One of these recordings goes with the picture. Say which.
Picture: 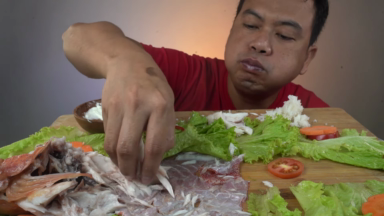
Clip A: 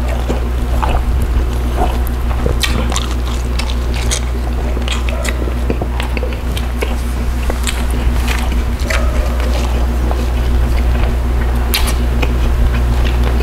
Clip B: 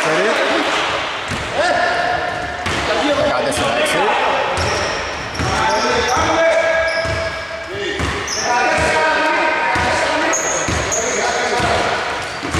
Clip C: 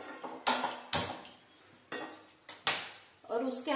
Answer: A